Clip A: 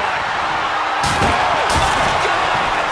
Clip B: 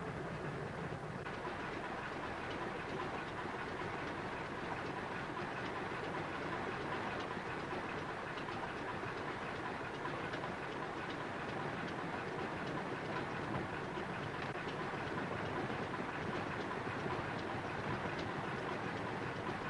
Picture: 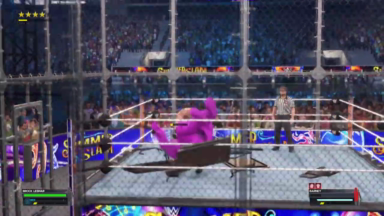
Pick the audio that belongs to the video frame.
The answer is A